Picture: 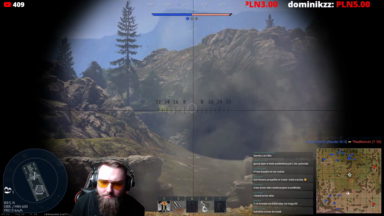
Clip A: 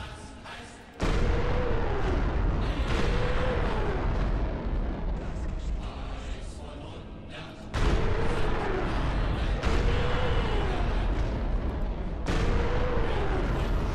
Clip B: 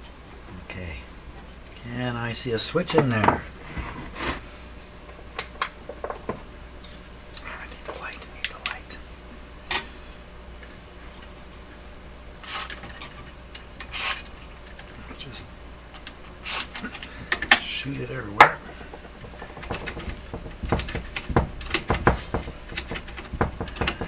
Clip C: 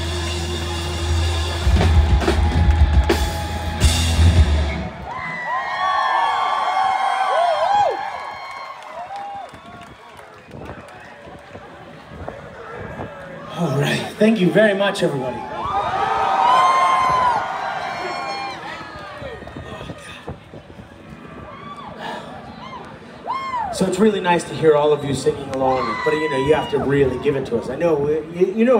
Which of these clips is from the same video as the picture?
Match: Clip A